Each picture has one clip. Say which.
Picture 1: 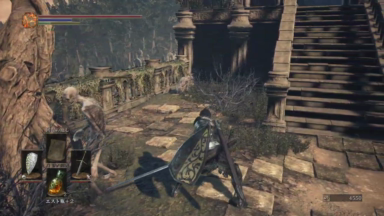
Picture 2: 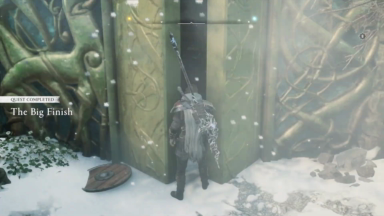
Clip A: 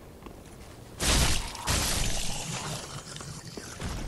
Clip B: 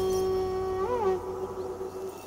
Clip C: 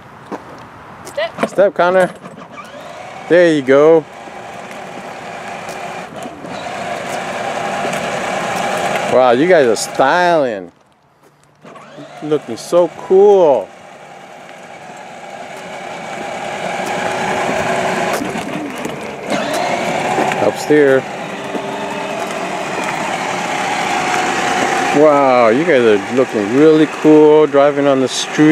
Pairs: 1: A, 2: B